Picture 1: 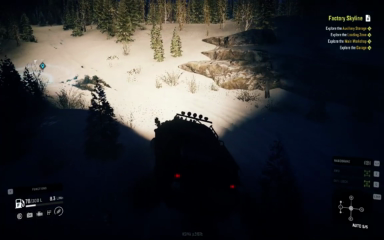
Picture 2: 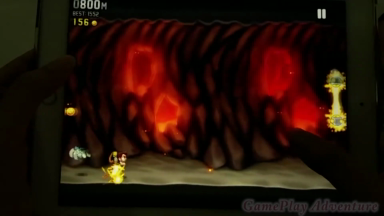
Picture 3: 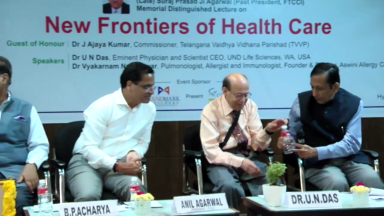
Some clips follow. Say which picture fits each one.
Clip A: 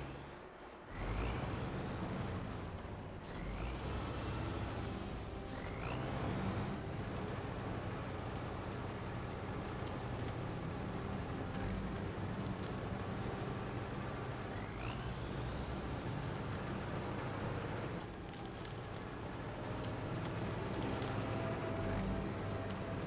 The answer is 1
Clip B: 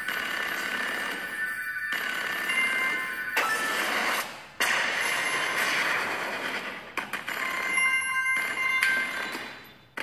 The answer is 2